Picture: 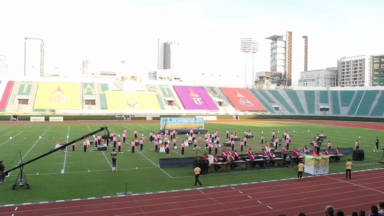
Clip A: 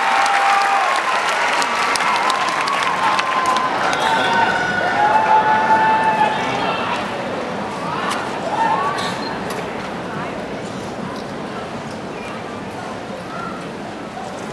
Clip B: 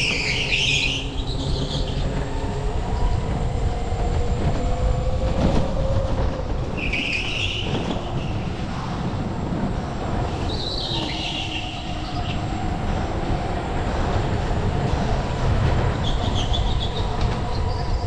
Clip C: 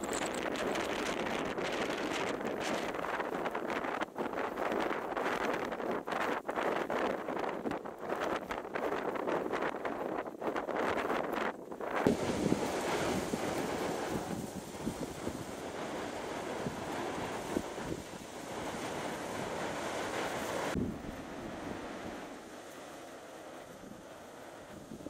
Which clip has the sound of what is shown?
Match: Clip A